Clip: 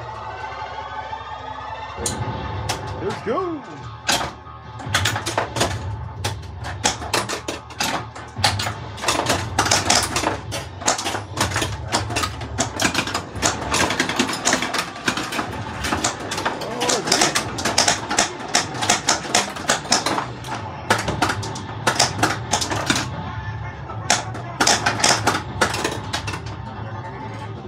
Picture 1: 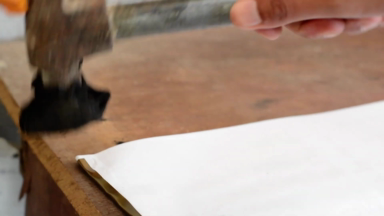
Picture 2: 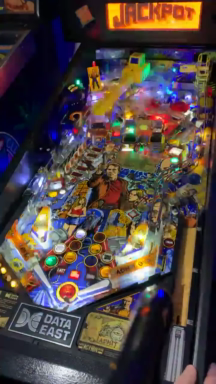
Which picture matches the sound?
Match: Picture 2